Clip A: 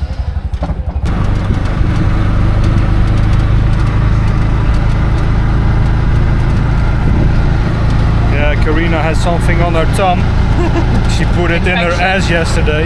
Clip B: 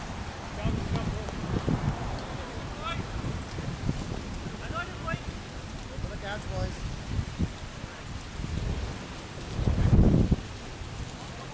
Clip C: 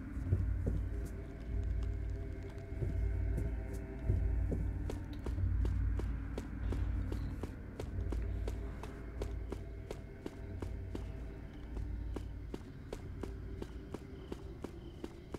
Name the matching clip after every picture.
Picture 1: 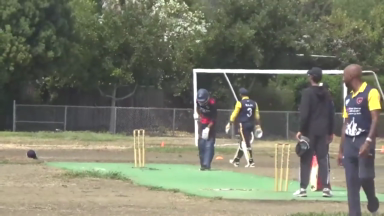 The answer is B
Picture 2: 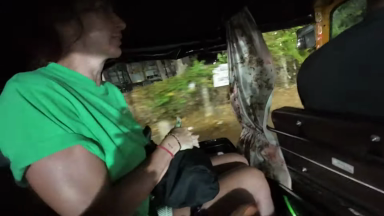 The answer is A